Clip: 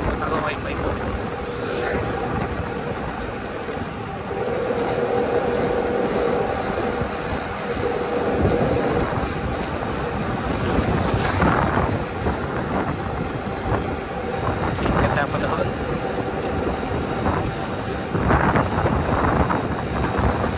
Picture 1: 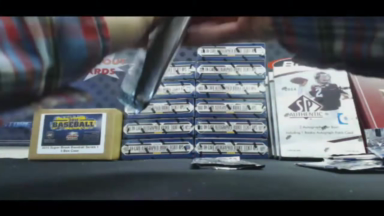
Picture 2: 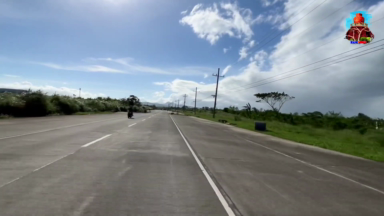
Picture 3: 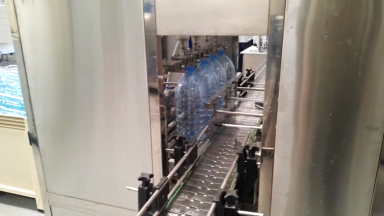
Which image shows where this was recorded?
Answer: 2